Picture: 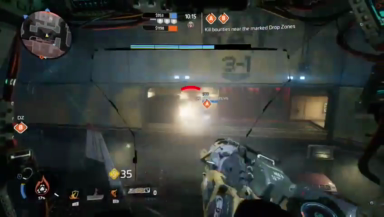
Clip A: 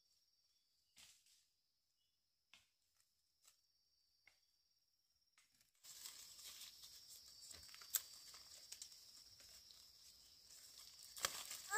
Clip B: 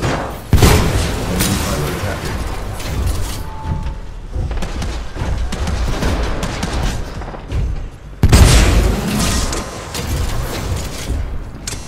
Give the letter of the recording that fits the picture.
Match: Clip B